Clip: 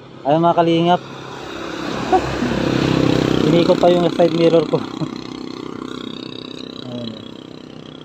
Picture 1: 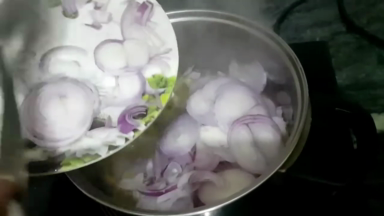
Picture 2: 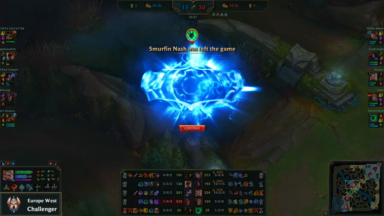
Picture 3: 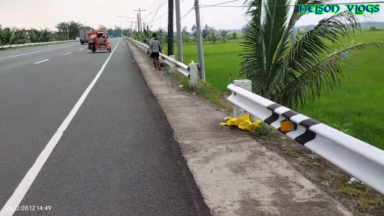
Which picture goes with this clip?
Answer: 3